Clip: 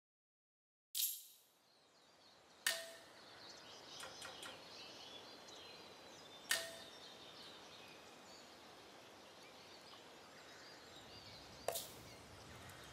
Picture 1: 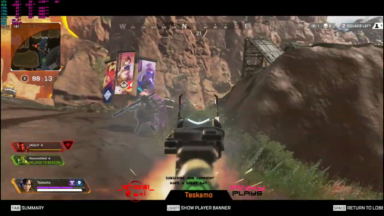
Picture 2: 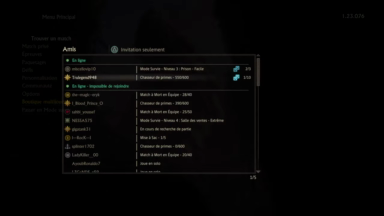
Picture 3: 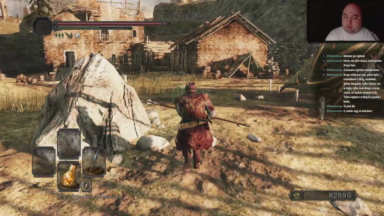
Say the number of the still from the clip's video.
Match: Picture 2